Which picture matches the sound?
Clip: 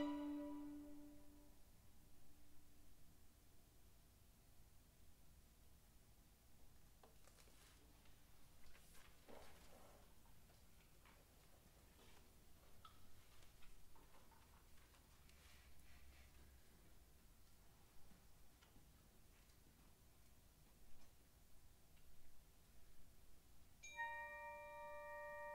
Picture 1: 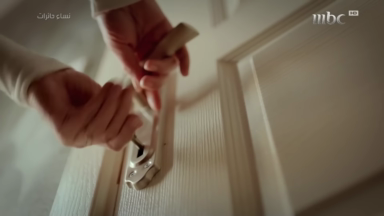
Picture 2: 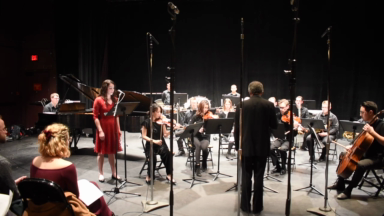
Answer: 2